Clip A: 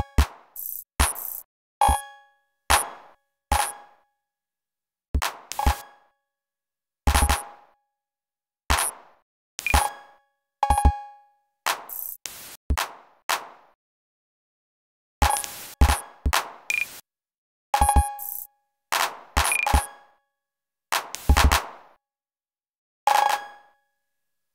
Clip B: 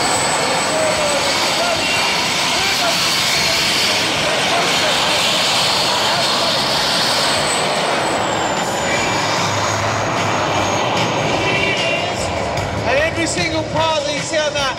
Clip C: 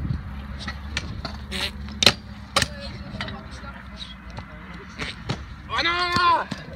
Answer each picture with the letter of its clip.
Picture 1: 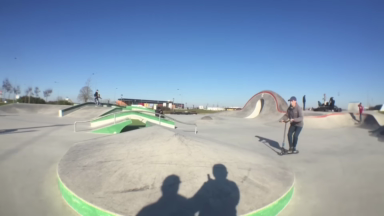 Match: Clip C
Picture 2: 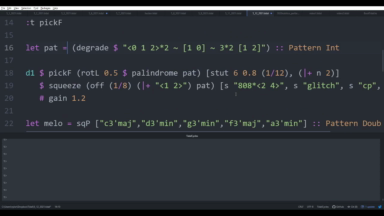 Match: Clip A